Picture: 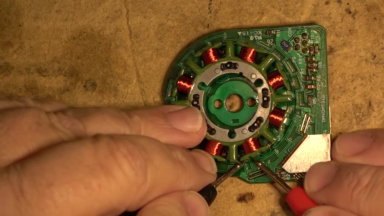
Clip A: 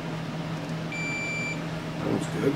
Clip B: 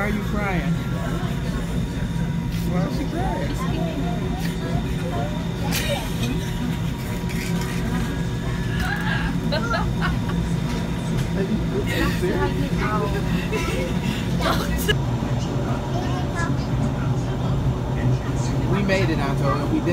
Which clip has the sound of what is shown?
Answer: A